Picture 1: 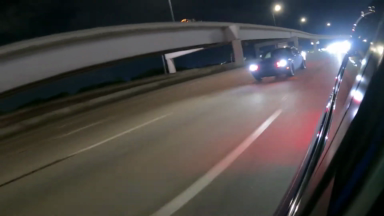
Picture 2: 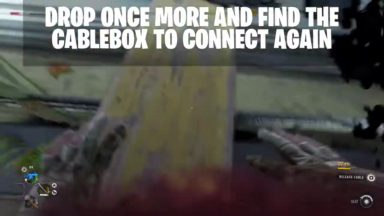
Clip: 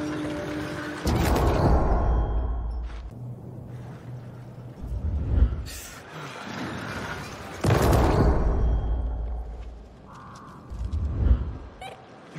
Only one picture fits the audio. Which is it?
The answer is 2